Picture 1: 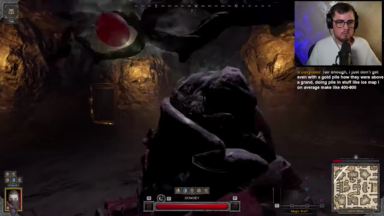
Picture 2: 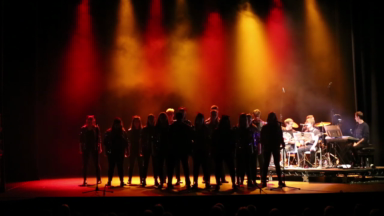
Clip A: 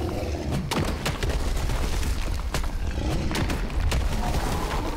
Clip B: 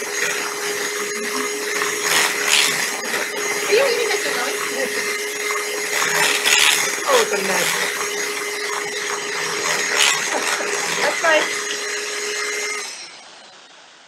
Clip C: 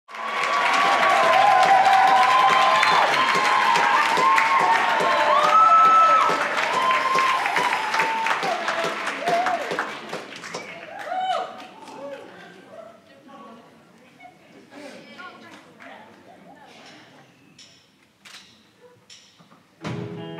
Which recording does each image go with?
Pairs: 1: A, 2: C